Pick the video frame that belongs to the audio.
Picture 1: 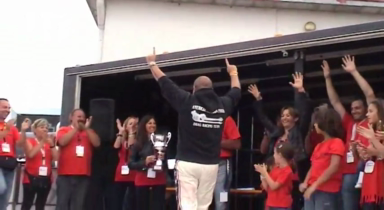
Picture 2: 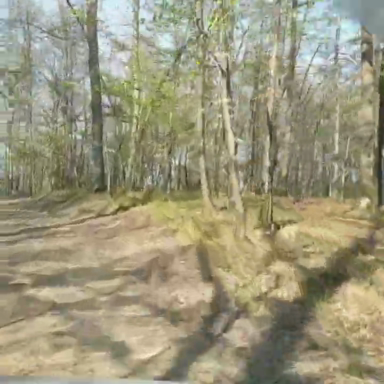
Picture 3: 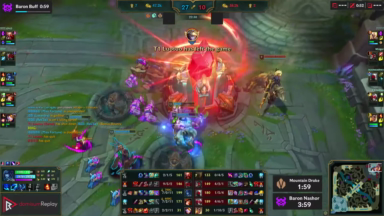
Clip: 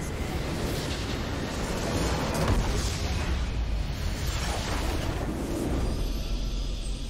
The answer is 3